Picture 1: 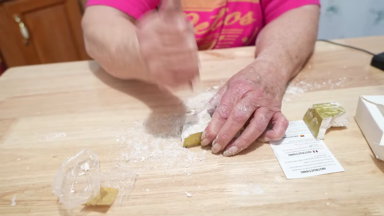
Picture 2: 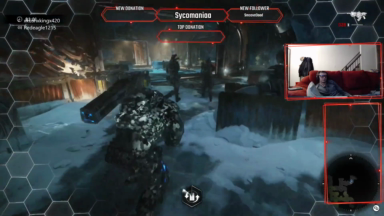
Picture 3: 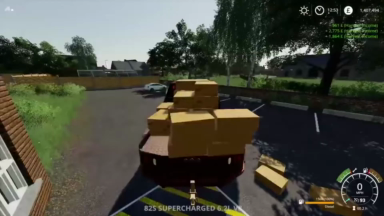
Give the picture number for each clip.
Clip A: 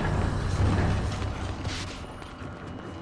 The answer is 2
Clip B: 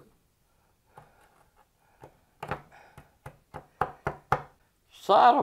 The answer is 1